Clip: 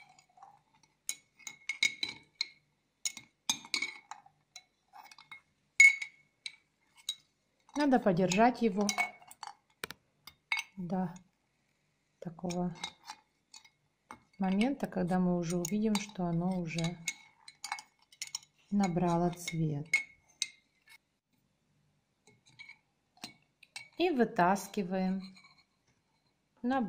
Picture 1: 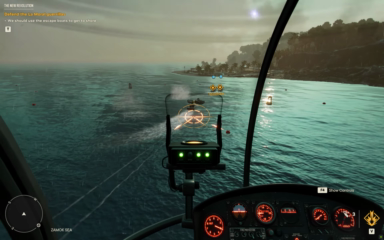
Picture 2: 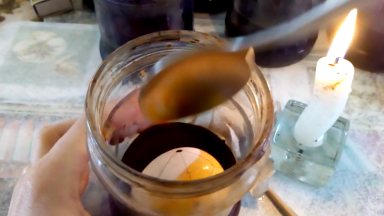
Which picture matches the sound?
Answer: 2